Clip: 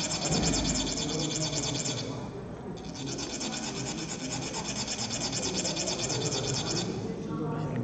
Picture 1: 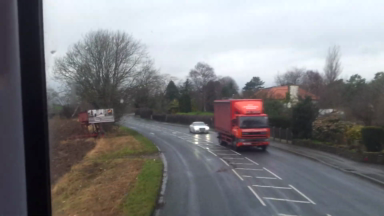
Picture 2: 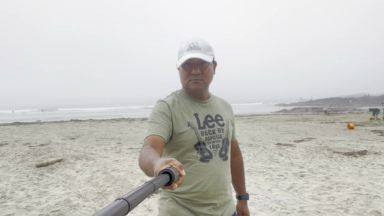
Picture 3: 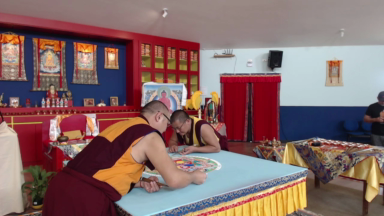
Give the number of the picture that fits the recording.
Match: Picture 3